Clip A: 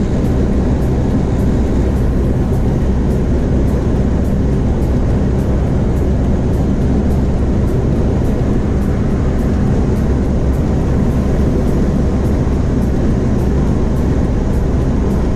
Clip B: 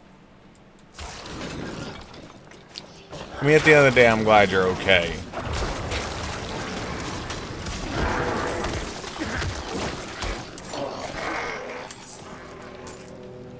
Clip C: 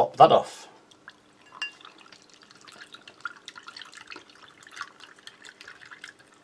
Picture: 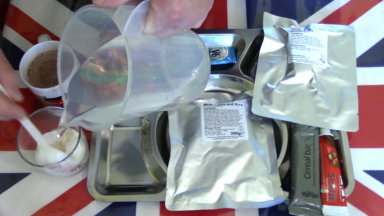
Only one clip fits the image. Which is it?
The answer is C